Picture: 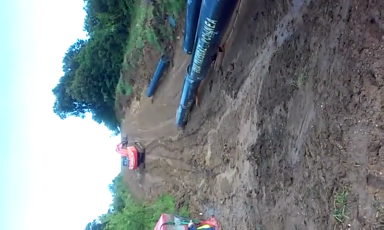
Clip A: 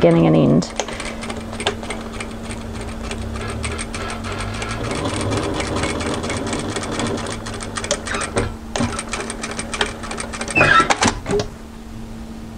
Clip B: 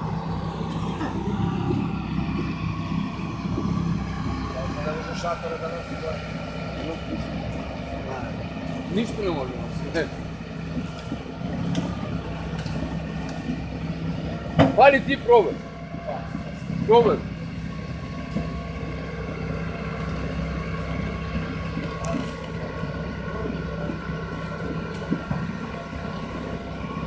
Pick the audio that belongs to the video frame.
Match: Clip B